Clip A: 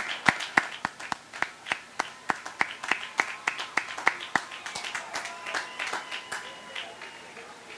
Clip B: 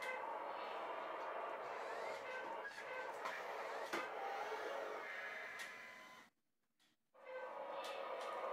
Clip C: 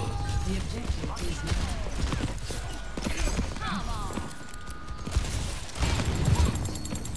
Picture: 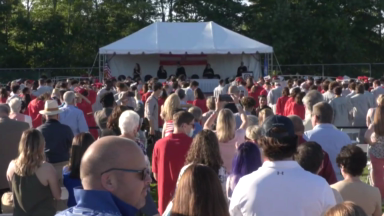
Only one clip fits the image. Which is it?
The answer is A